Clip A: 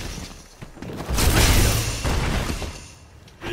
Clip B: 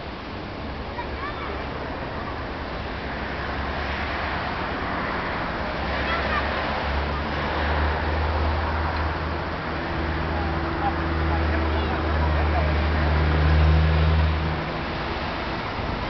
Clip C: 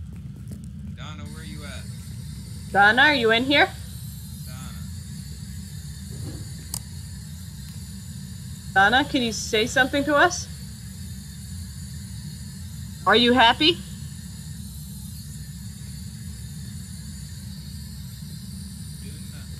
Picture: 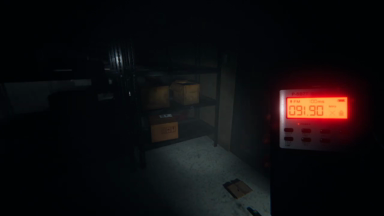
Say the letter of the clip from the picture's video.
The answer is C